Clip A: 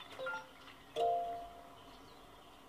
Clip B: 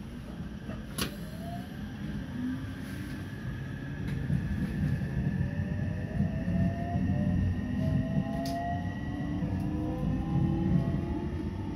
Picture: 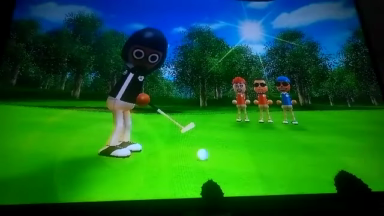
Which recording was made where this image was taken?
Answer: A